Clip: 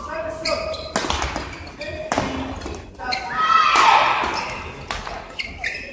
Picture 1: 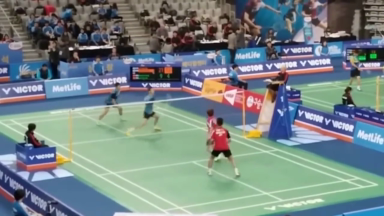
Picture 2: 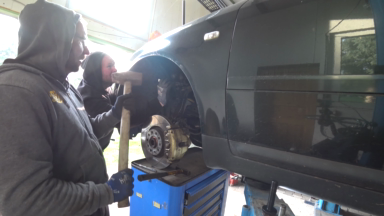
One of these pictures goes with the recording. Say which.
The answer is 1